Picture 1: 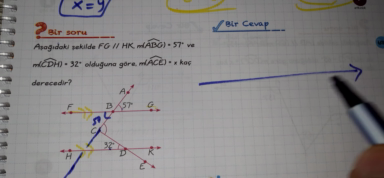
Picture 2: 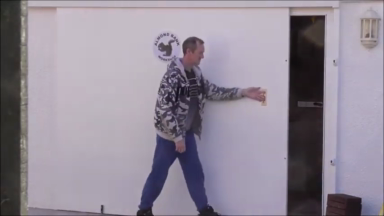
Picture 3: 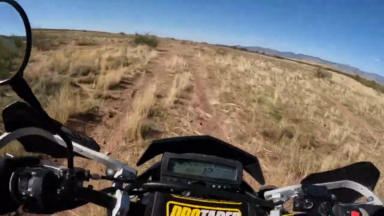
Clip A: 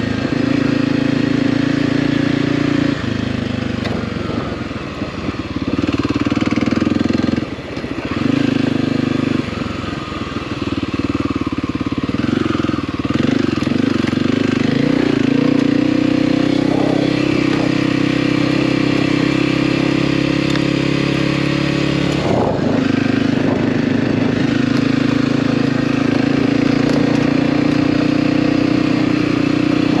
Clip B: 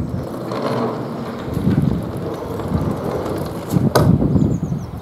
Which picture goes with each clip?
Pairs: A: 3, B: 2